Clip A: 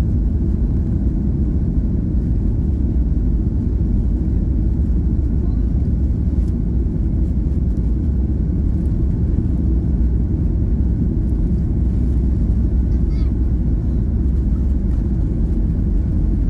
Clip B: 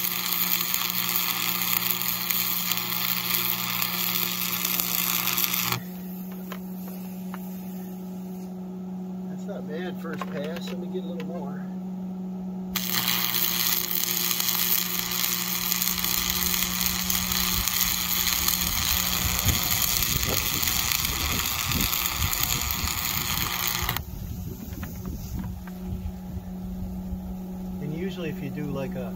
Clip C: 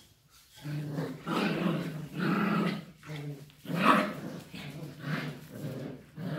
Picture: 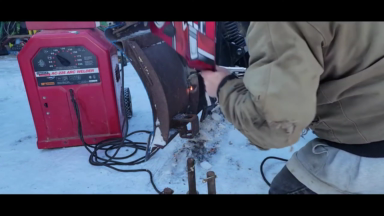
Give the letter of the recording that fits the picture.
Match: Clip B